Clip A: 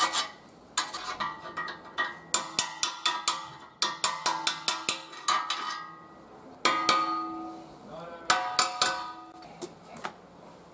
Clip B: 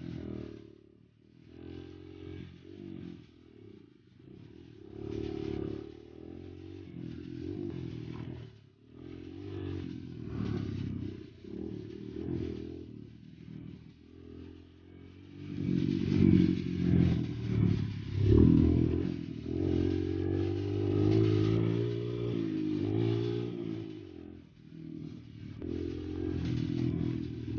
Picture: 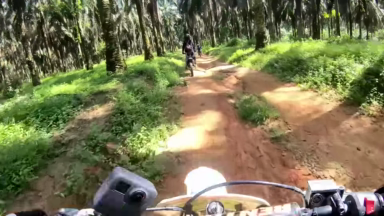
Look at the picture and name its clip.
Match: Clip B